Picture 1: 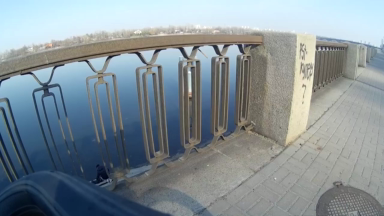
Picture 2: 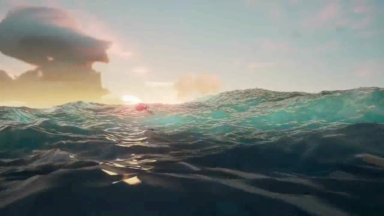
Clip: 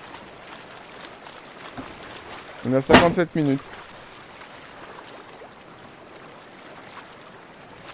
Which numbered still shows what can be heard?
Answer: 2